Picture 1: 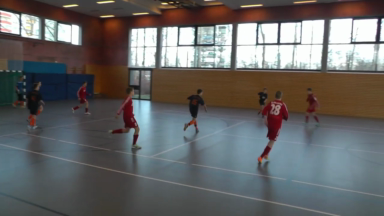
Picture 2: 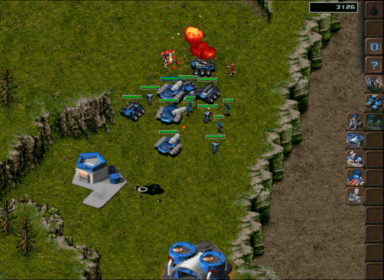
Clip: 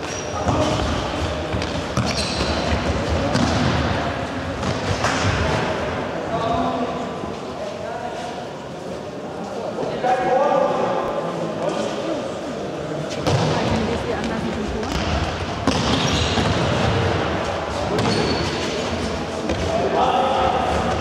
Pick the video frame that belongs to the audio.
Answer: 1